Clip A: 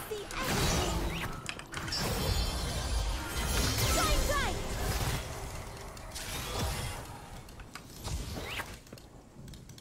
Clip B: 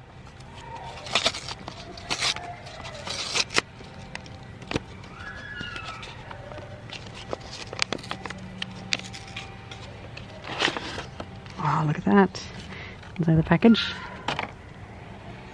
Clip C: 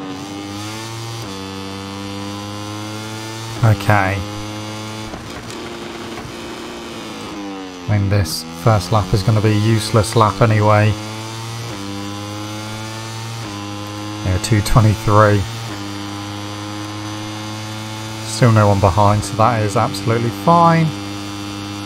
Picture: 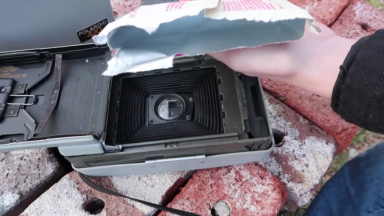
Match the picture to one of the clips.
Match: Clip B